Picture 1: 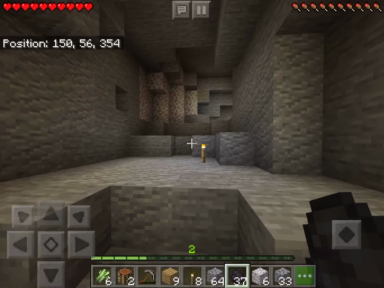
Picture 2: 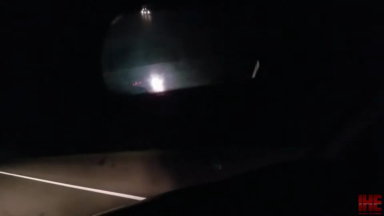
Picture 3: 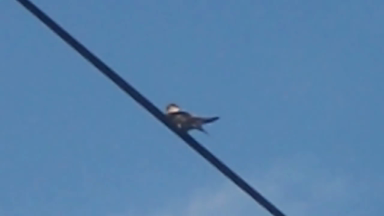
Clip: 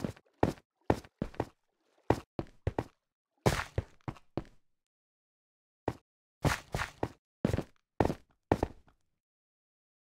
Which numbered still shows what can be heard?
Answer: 1